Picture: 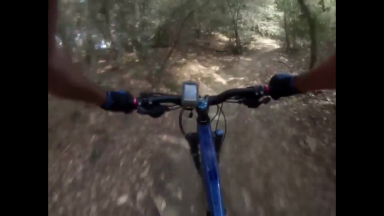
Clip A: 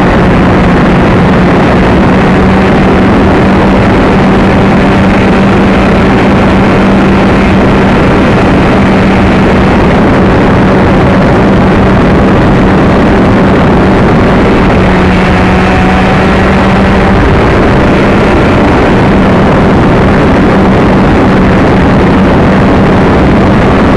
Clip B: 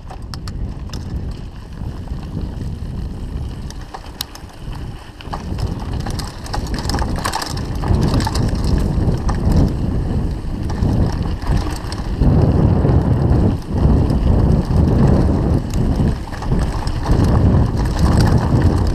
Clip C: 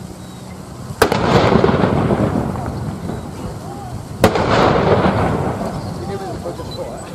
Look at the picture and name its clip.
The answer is B